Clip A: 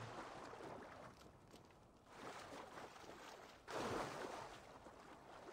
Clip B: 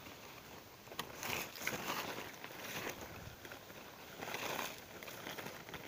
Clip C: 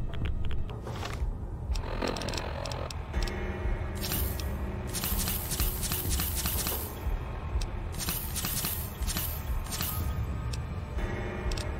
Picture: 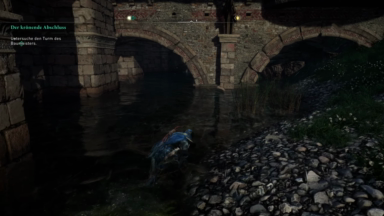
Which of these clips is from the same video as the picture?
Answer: A